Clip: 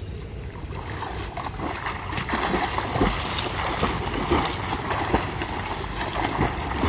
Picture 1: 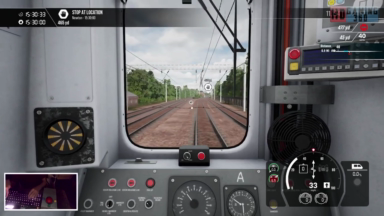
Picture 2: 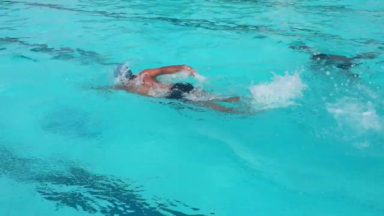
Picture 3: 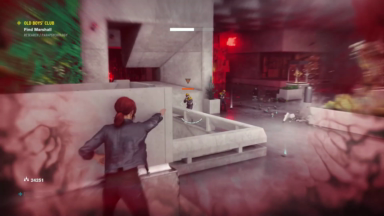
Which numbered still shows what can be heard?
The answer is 2